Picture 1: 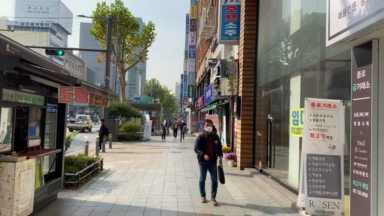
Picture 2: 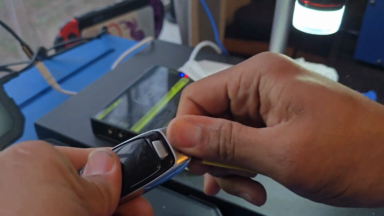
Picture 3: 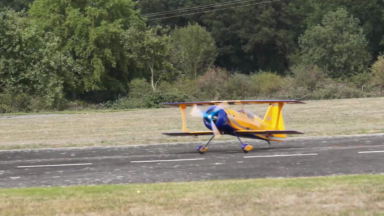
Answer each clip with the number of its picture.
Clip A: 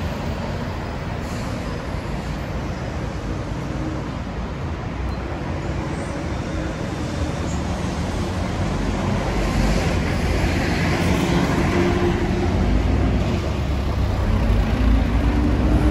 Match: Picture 1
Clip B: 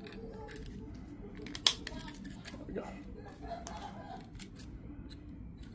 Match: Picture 2